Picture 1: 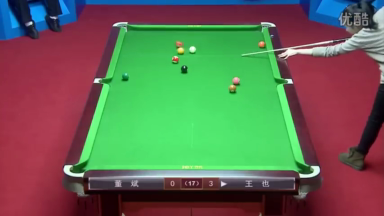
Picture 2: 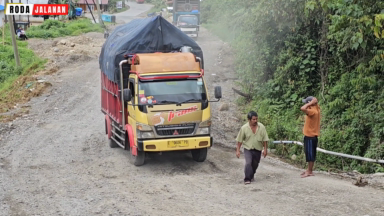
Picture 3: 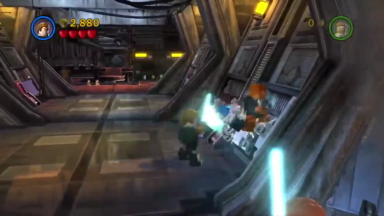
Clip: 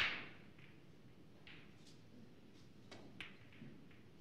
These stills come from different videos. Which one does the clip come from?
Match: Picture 1